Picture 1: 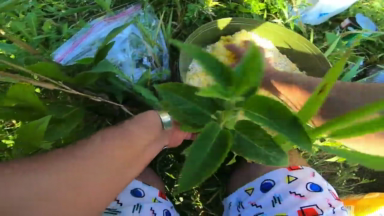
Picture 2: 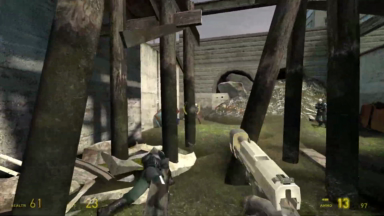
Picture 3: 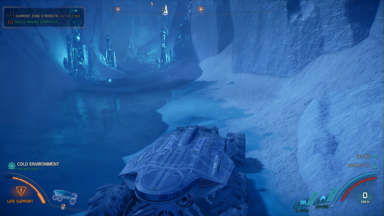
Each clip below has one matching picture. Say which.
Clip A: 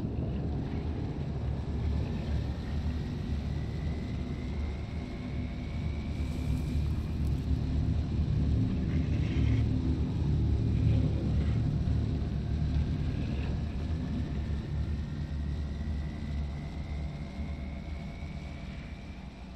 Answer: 3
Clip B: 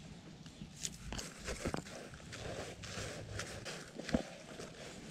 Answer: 1